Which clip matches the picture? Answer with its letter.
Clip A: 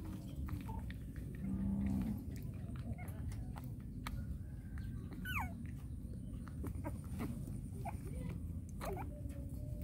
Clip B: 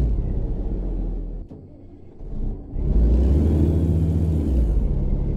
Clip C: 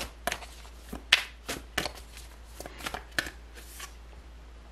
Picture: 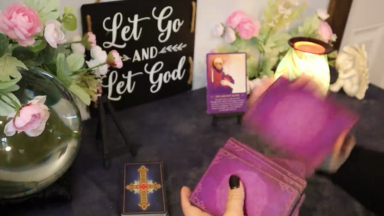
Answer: C